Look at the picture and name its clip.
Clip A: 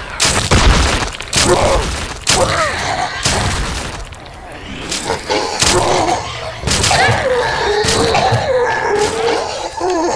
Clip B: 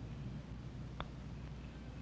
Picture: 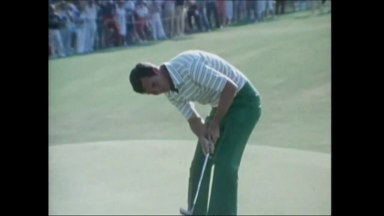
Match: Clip B